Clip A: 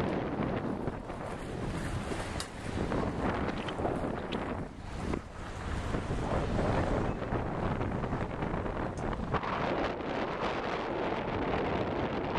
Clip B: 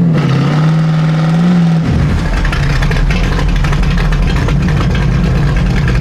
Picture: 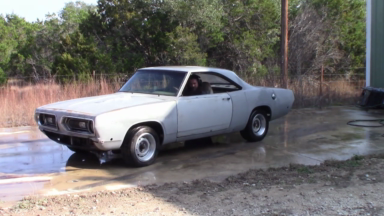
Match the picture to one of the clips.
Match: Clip B